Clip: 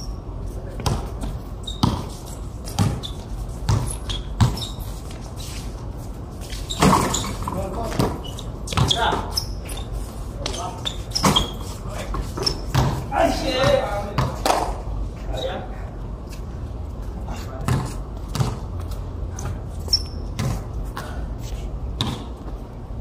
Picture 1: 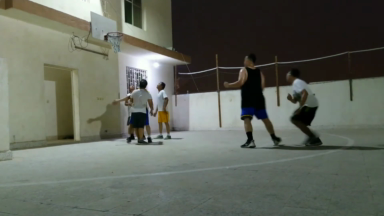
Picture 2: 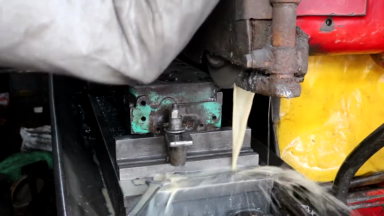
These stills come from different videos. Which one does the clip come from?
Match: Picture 1